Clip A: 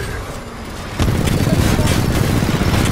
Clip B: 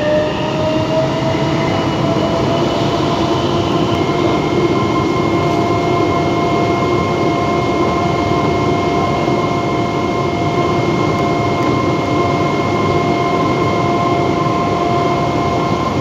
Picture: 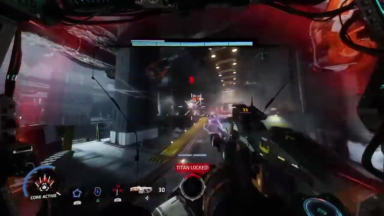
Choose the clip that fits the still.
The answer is A